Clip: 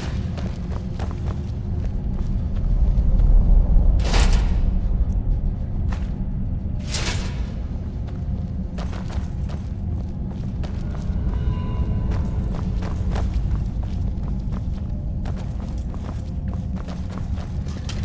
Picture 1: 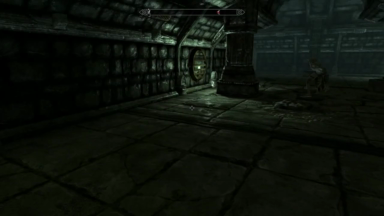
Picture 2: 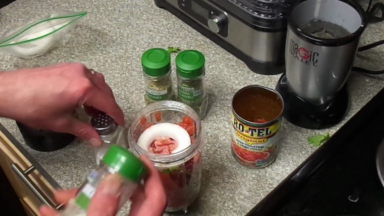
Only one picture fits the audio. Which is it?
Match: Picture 1